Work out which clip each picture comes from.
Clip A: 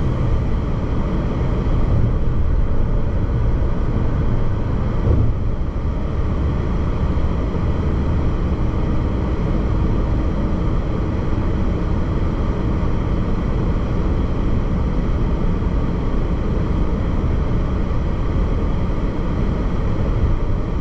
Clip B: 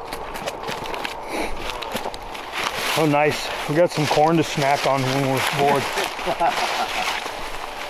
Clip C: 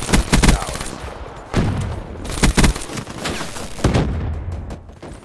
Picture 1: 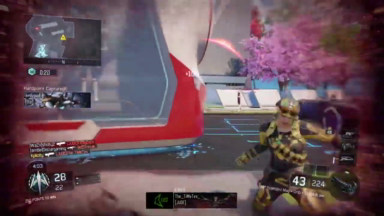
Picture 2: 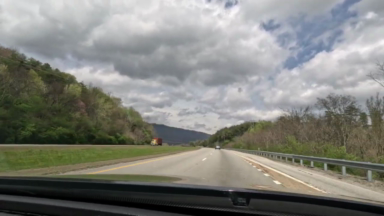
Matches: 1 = C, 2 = A